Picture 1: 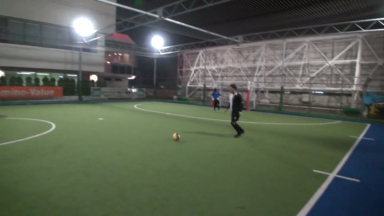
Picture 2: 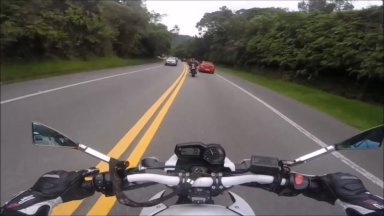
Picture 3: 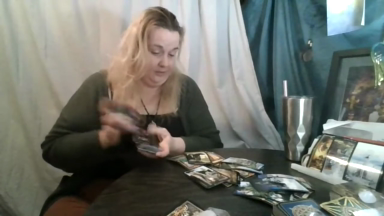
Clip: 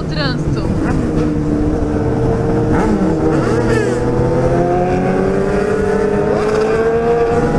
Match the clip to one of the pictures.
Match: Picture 2